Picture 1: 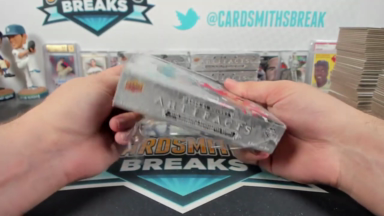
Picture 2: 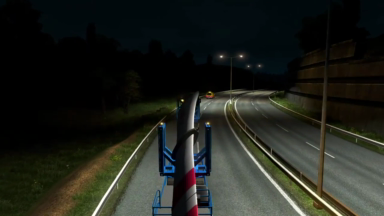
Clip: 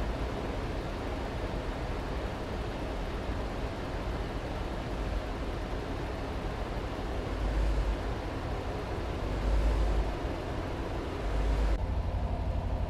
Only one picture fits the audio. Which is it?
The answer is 2